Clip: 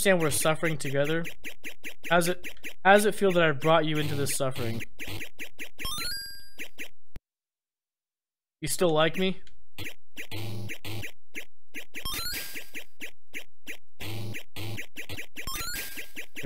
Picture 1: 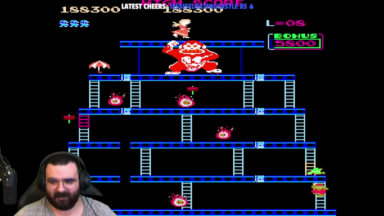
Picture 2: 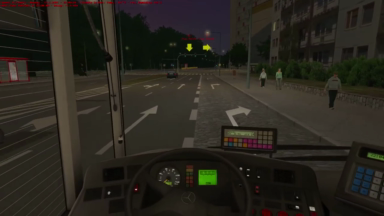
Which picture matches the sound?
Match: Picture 1